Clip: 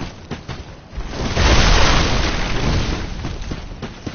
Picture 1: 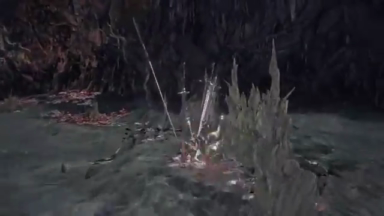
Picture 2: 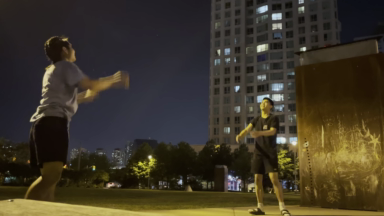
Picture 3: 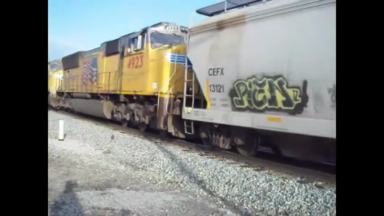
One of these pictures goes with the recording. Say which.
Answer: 1